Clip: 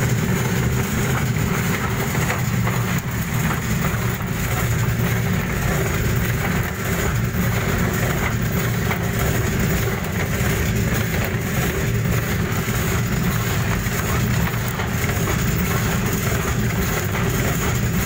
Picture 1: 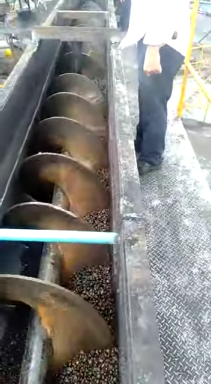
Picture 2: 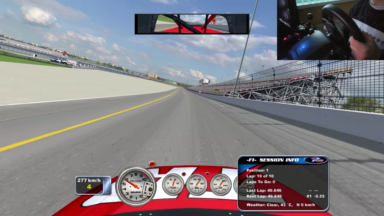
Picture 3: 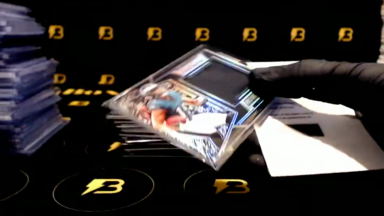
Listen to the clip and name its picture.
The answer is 1